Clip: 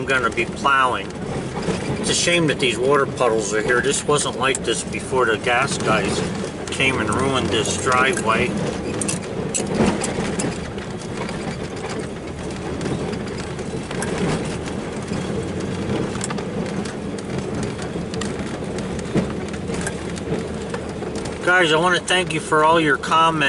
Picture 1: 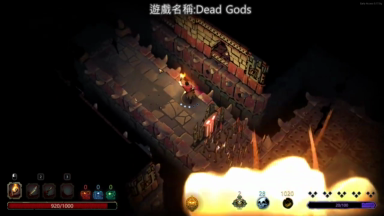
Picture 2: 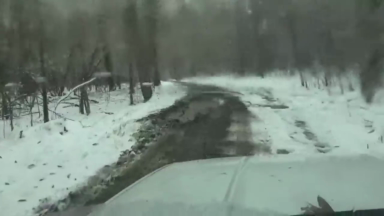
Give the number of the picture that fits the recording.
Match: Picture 2